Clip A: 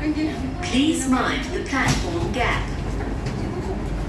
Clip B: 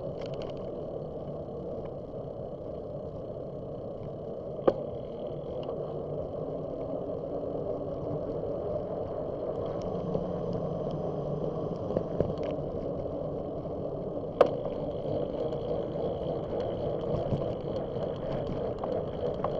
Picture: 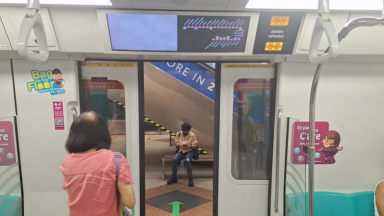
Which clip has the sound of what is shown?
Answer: A